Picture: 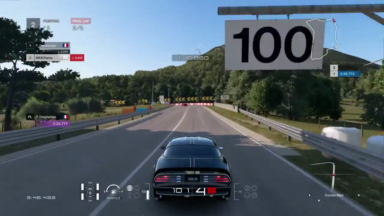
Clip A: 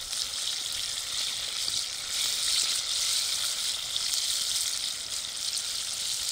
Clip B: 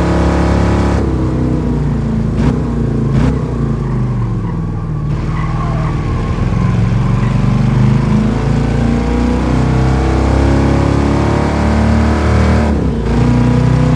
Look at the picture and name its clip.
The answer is B